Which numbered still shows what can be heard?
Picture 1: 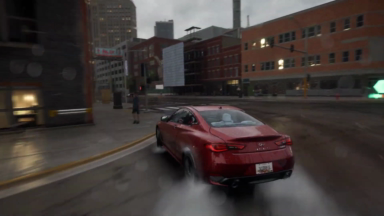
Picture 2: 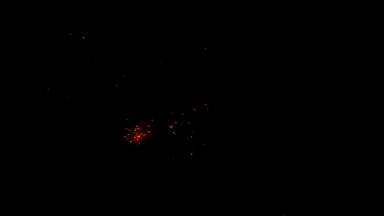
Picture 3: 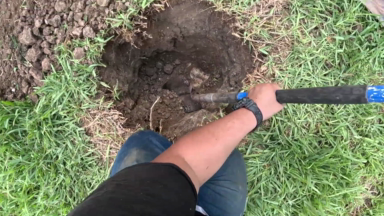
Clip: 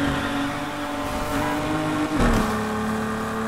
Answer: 1